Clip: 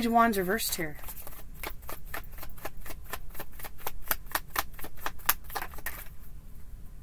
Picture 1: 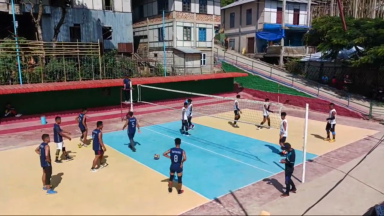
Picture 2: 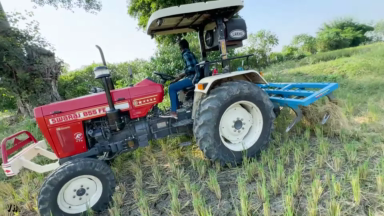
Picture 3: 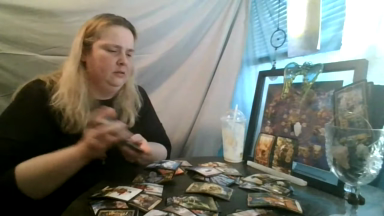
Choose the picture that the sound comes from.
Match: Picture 3